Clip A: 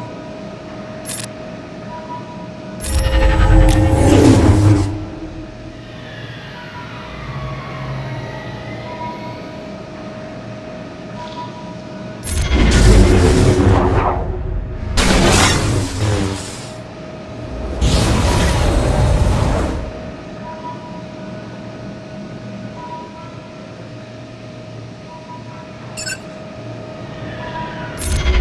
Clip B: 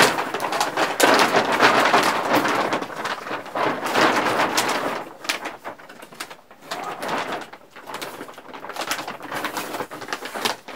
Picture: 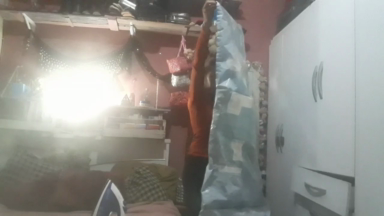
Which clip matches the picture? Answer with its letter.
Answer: B